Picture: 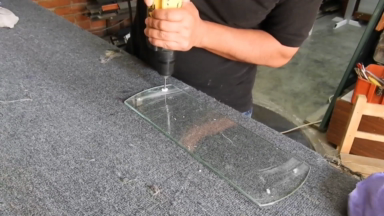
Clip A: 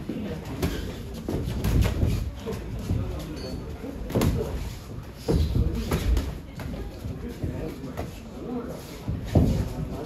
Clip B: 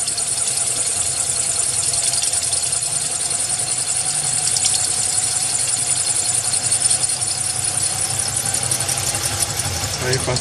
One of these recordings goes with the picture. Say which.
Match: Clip B